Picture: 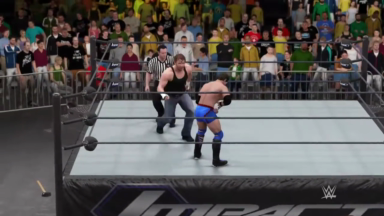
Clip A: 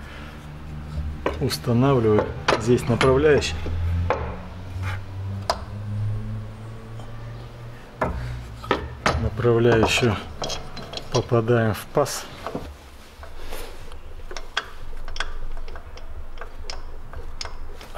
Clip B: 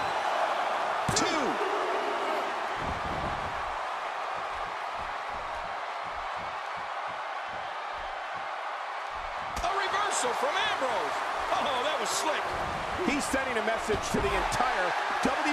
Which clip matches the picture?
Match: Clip B